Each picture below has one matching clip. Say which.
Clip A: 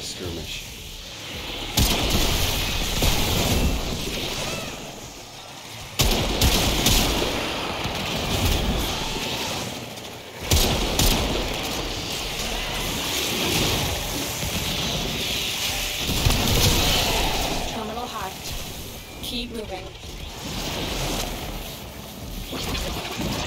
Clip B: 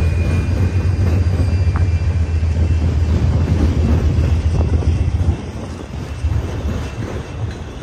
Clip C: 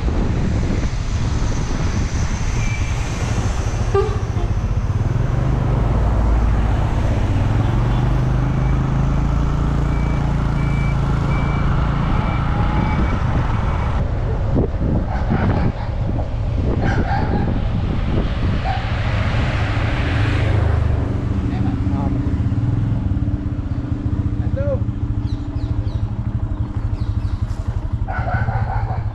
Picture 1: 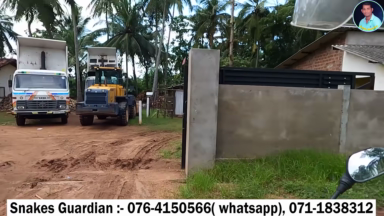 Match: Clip C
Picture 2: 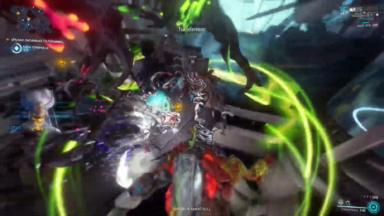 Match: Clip A